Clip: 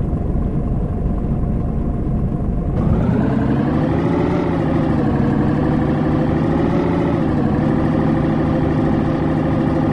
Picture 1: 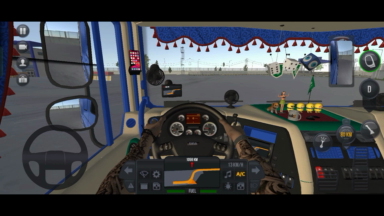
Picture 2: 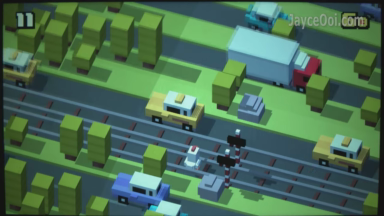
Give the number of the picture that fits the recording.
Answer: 1